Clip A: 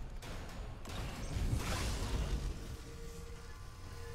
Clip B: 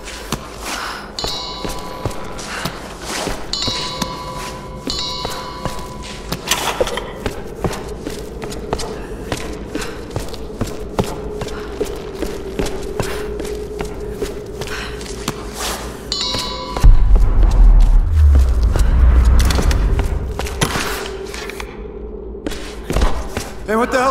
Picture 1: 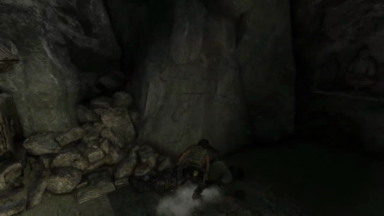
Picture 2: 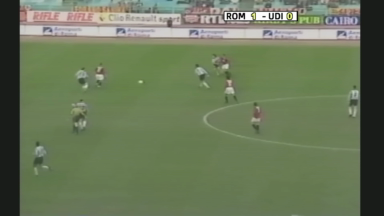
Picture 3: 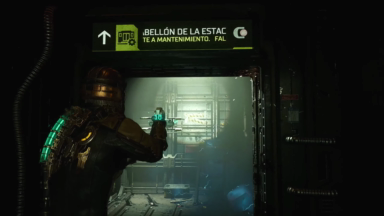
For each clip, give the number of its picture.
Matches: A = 3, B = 1